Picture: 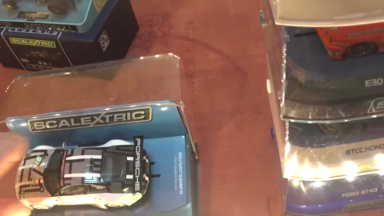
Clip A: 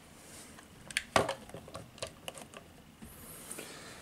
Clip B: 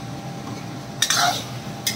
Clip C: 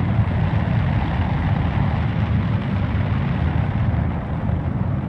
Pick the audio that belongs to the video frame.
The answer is A